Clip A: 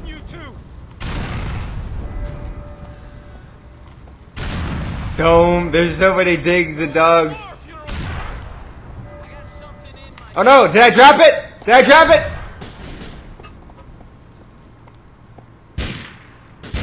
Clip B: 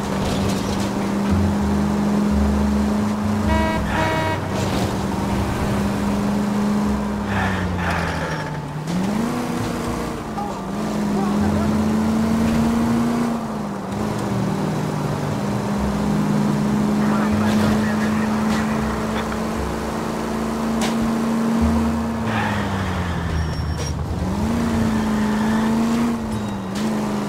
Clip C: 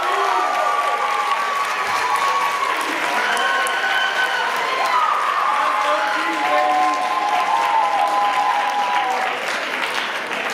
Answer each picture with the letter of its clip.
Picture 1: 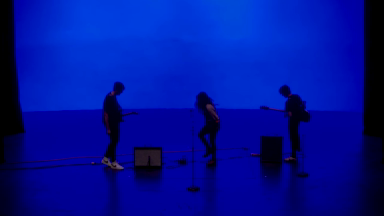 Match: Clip C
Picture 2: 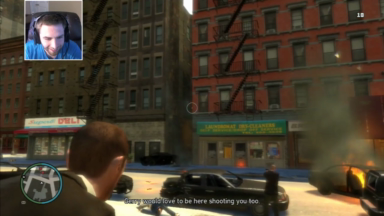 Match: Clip A